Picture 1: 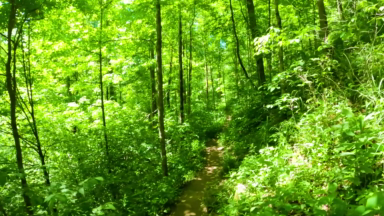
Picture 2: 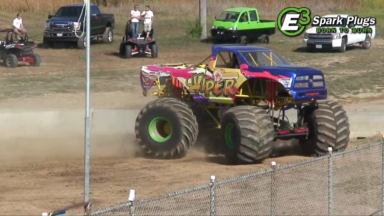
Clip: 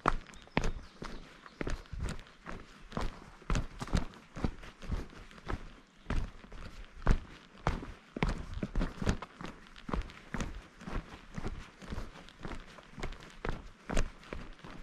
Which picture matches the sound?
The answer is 1